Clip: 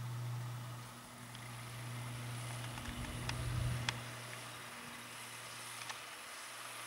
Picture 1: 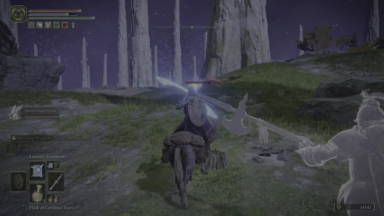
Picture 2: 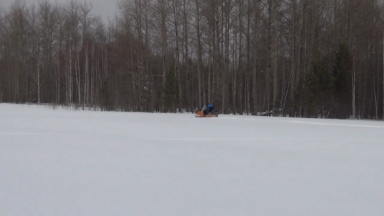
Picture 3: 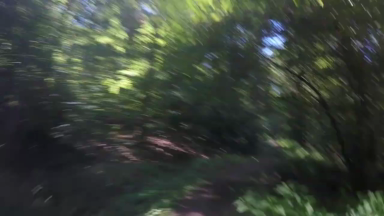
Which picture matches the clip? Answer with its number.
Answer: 2